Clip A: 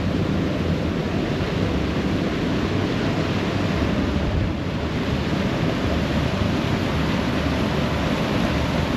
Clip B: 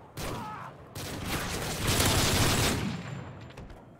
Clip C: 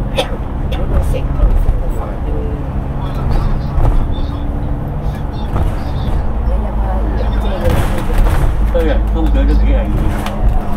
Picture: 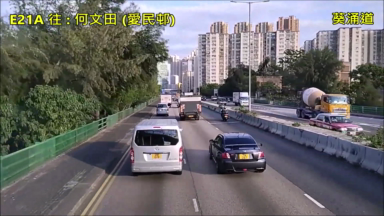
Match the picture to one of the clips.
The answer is C